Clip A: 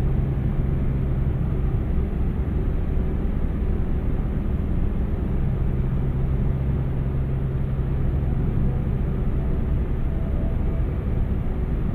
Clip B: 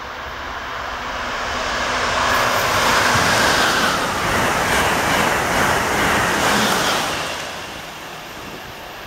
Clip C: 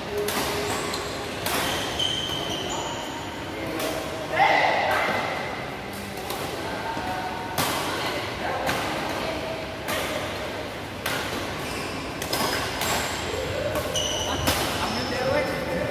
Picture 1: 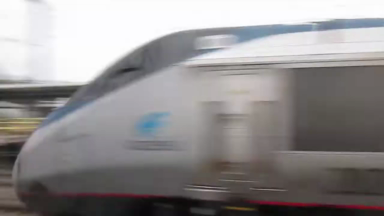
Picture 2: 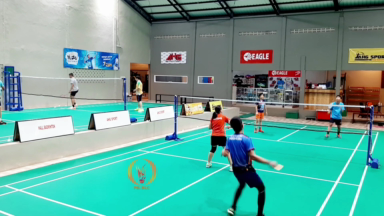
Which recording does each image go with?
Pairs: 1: B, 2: C